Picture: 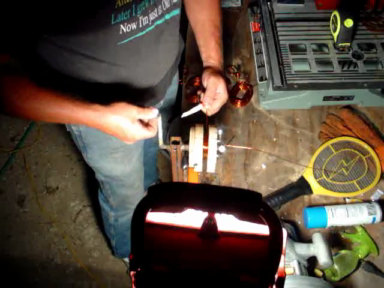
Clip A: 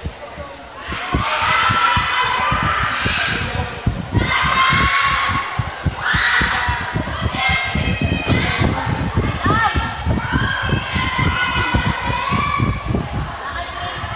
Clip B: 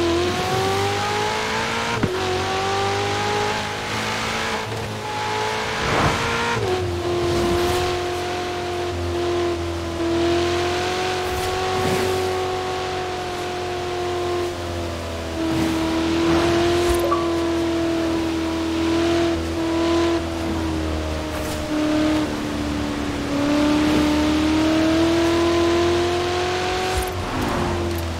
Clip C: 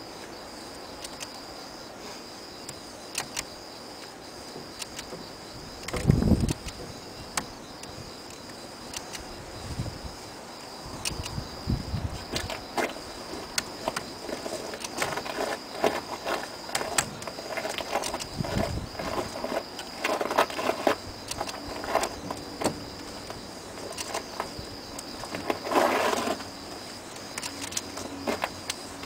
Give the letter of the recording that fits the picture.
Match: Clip C